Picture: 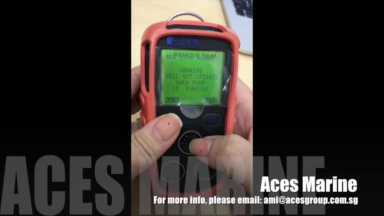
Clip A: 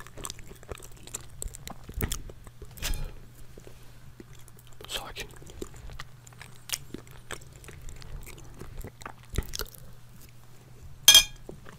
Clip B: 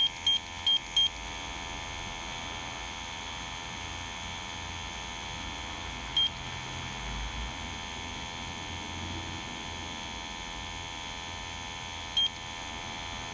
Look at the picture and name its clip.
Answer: B